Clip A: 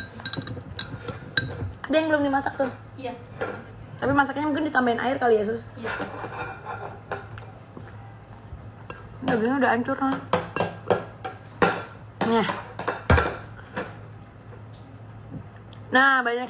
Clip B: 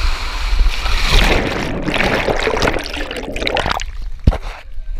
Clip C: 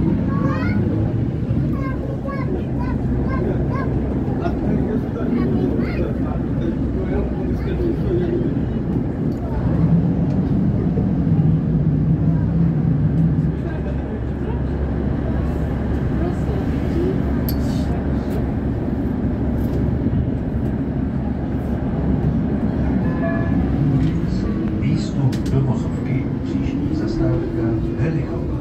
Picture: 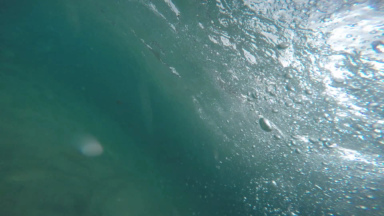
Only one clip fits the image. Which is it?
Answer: B